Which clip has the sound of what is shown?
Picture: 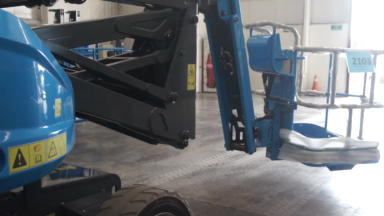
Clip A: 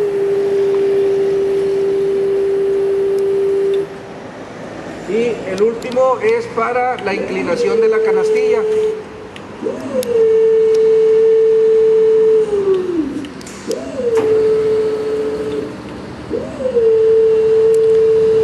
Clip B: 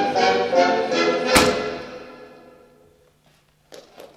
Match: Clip A